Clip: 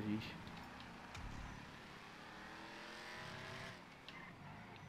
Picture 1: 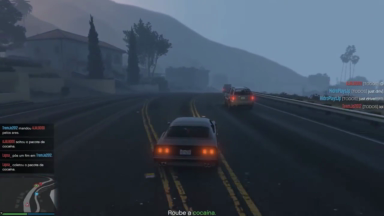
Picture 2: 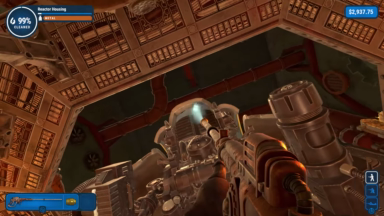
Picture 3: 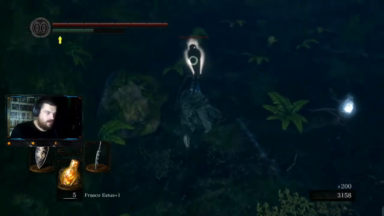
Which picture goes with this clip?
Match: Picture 1